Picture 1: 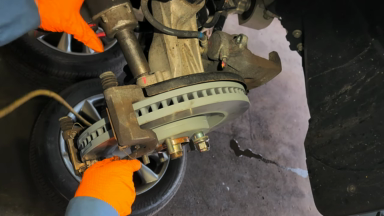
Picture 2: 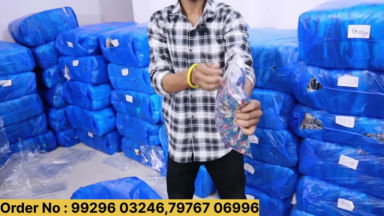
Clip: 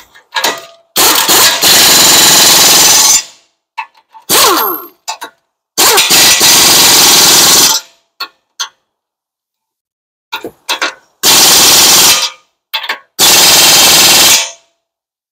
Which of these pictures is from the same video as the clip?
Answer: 1